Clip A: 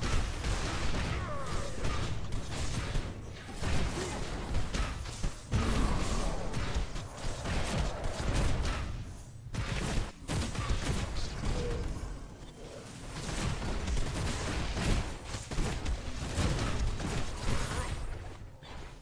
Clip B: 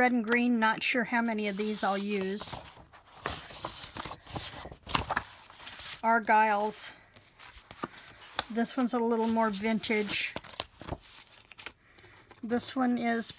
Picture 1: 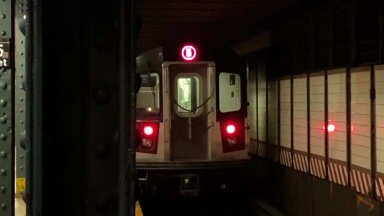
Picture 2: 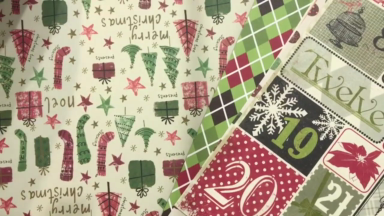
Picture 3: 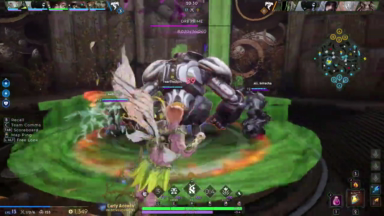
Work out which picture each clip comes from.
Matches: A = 3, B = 2